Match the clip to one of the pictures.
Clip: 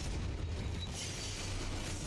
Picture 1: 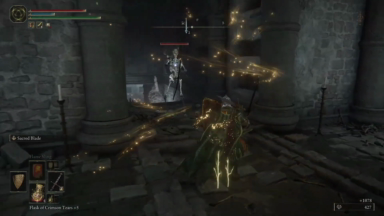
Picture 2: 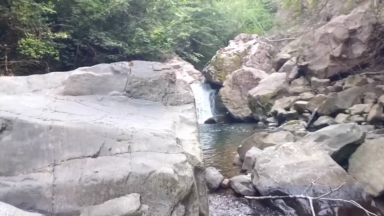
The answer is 1